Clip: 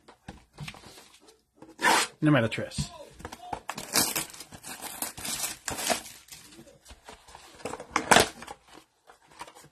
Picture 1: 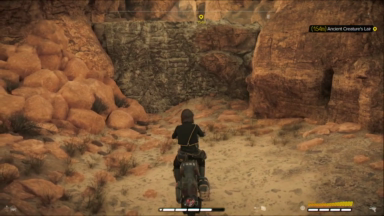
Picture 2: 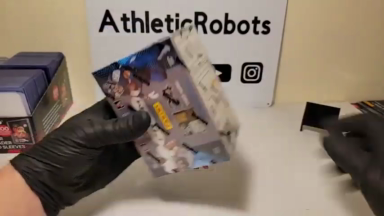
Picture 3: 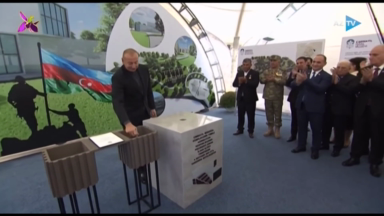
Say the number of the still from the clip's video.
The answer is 2